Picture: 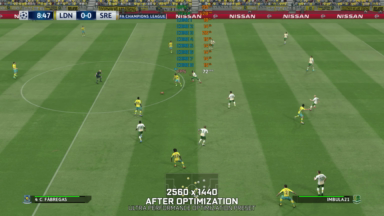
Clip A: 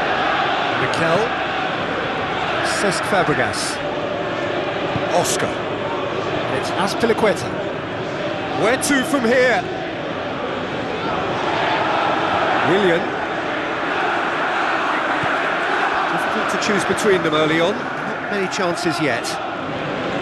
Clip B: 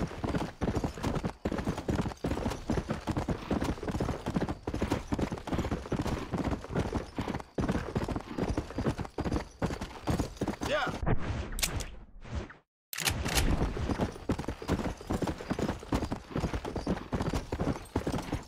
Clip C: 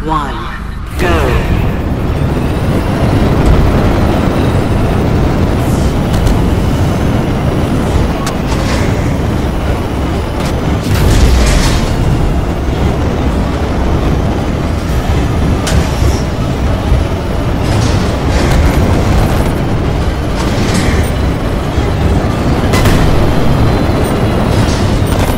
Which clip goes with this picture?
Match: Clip A